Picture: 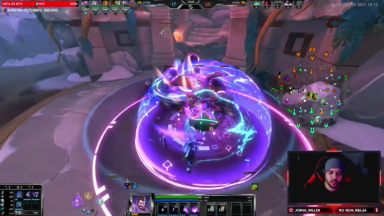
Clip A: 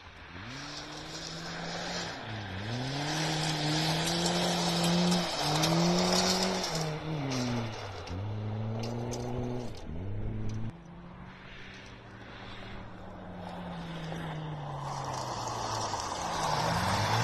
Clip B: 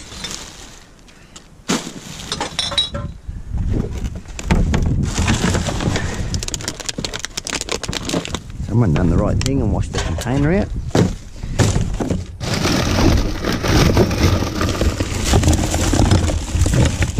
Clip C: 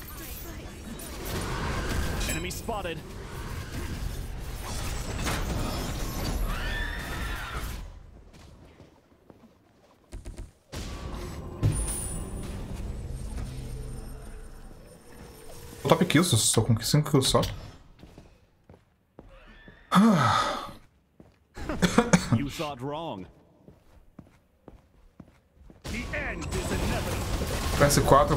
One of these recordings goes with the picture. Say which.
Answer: C